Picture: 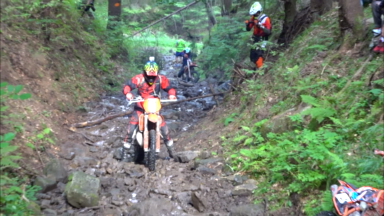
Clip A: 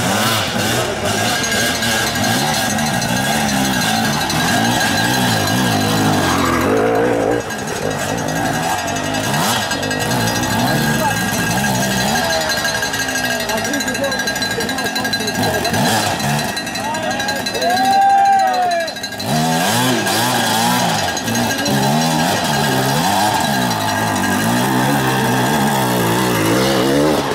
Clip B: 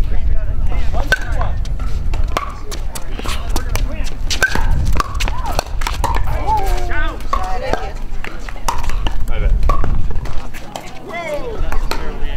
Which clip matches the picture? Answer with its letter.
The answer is A